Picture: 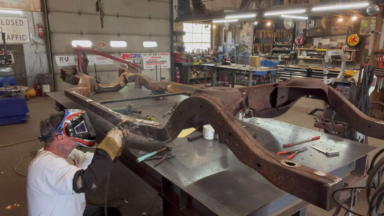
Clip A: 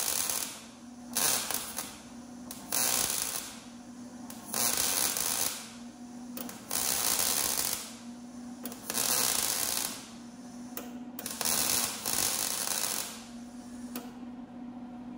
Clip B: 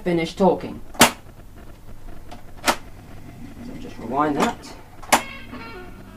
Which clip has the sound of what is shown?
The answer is A